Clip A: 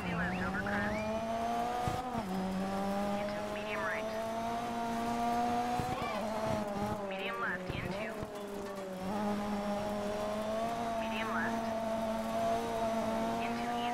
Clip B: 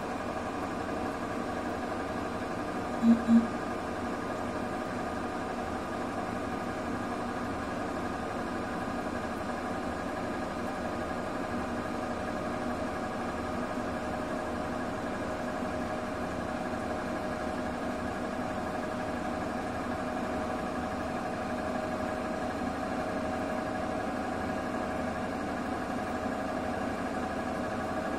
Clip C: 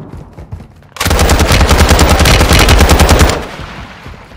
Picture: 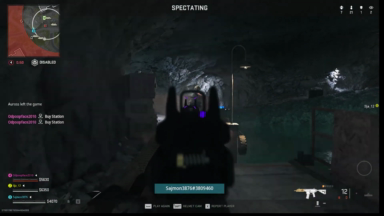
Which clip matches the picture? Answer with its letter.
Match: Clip C